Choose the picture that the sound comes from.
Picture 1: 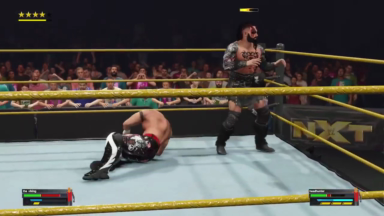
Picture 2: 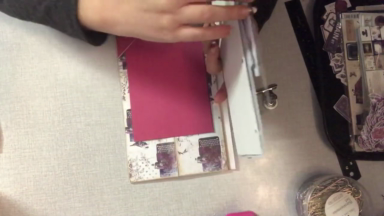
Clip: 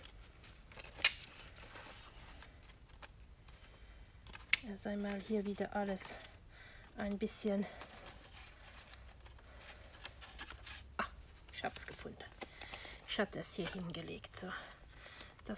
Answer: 2